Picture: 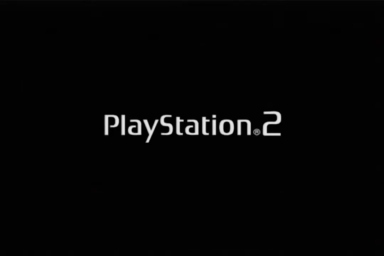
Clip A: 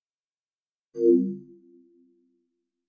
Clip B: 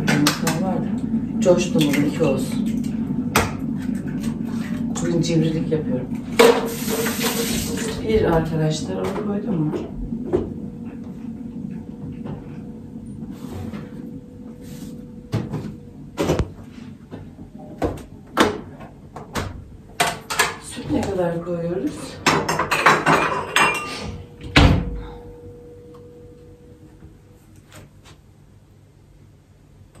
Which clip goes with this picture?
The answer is A